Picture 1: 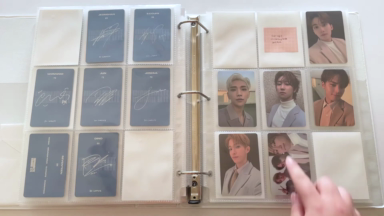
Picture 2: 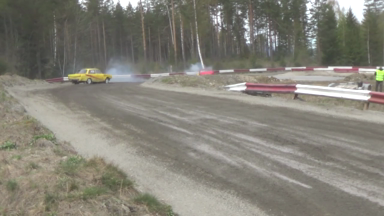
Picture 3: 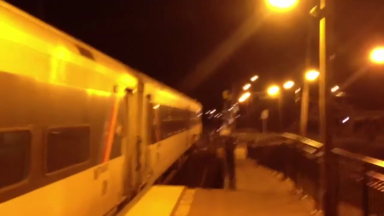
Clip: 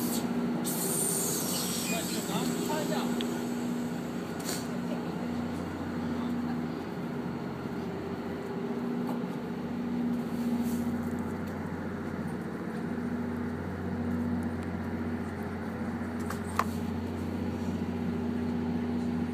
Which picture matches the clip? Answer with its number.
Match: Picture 3